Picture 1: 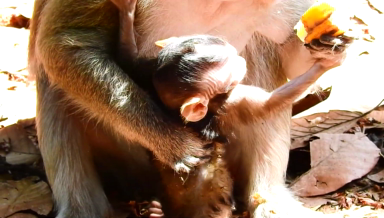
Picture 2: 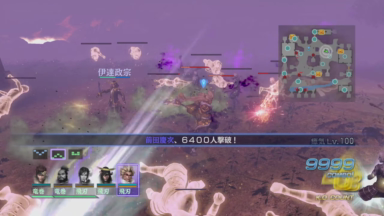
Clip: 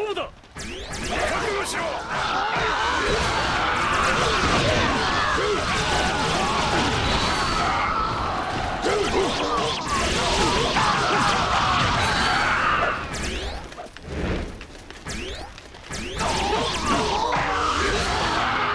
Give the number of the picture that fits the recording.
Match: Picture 2